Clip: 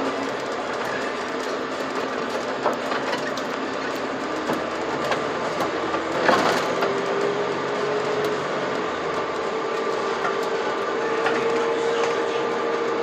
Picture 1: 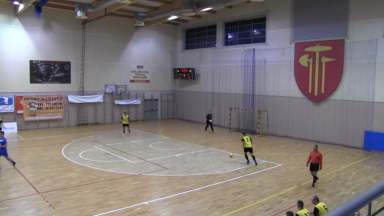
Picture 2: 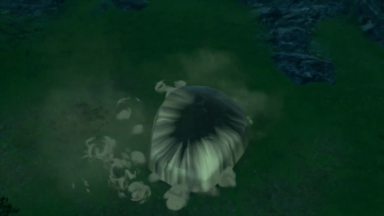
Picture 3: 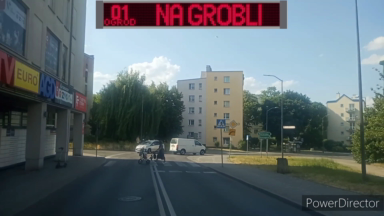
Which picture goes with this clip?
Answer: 3